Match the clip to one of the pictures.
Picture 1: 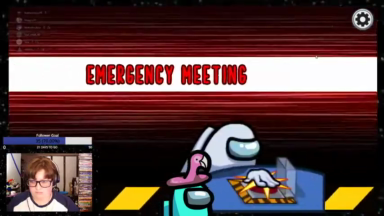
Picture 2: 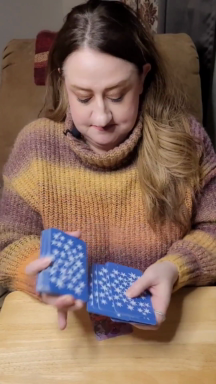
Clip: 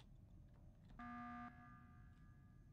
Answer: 1